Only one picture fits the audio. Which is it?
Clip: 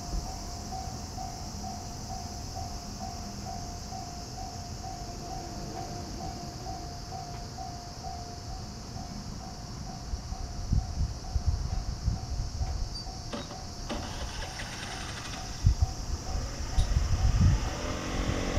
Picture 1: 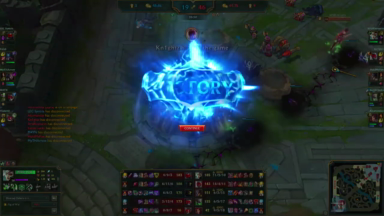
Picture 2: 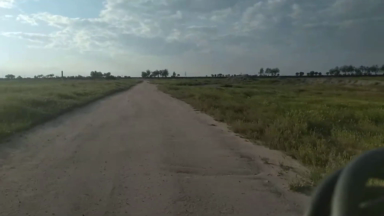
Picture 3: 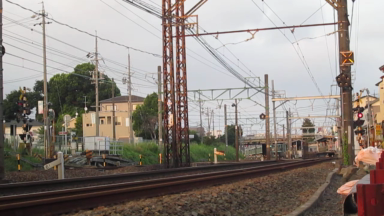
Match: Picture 3